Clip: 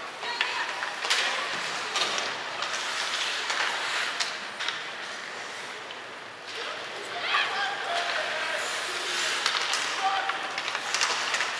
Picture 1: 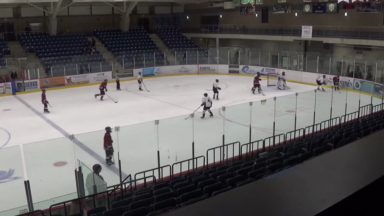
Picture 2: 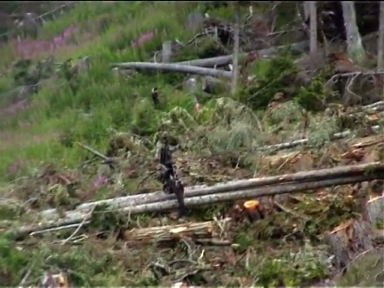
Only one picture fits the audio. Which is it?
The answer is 1